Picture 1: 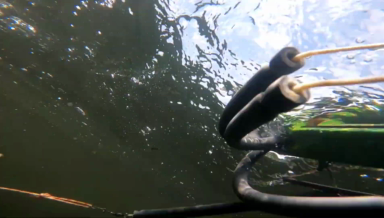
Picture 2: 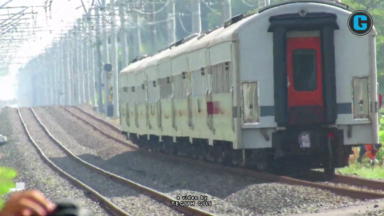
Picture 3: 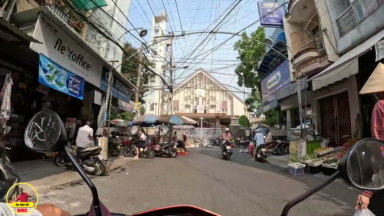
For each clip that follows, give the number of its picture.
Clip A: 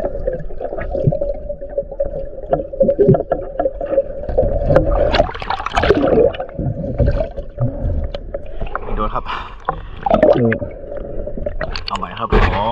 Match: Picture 1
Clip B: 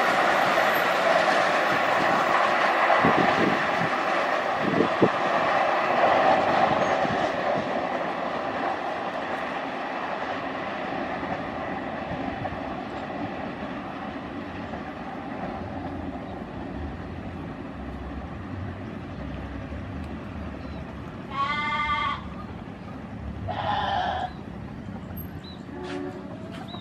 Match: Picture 2